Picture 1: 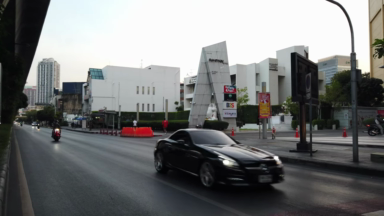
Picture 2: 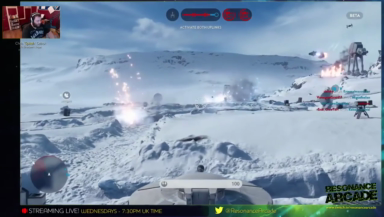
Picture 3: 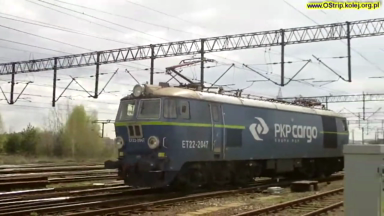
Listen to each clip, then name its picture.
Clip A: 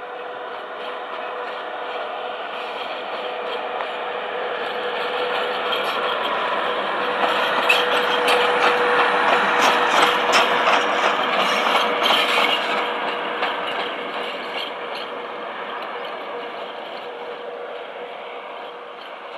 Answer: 3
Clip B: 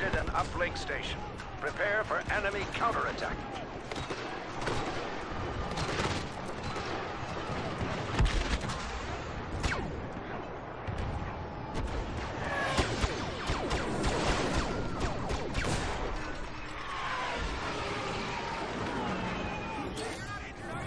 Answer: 2